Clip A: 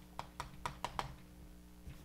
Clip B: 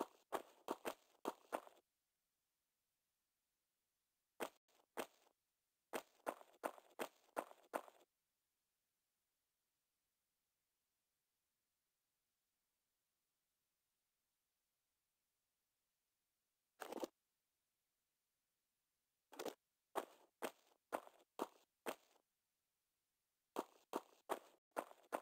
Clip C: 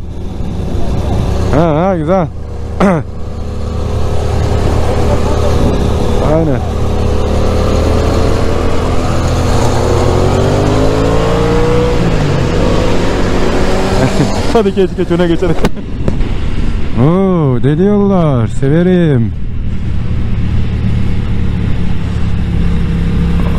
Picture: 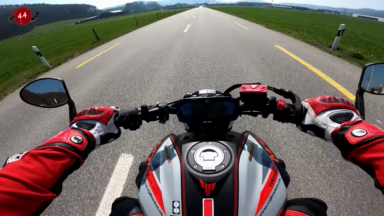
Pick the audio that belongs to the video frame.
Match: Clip C